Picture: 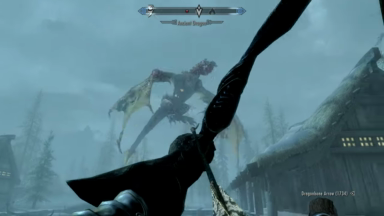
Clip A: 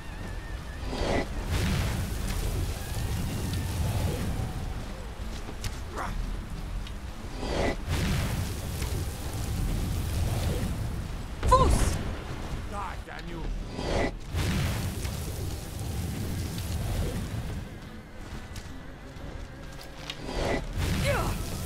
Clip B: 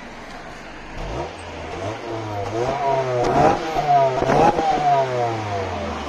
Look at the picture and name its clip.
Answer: A